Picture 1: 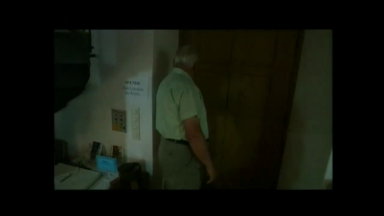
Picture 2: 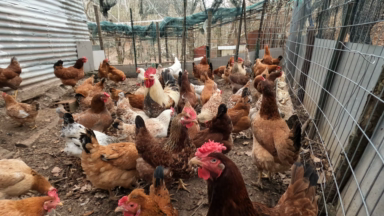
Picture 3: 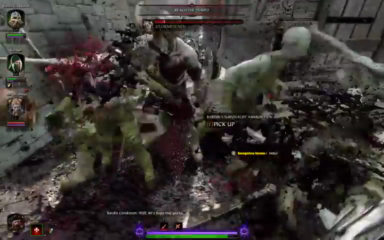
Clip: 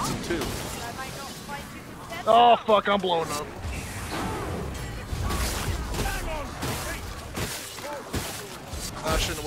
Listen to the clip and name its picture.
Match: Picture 3